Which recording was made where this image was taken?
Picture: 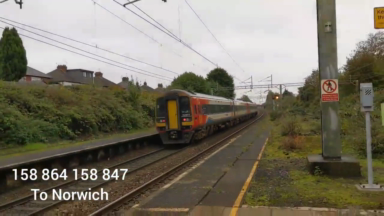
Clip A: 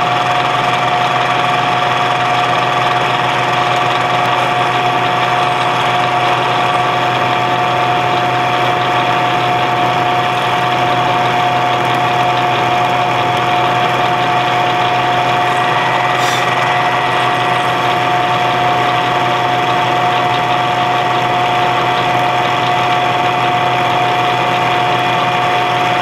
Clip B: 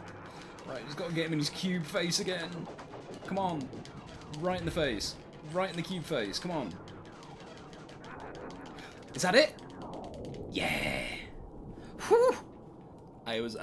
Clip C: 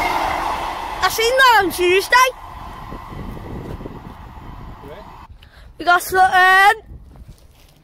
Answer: C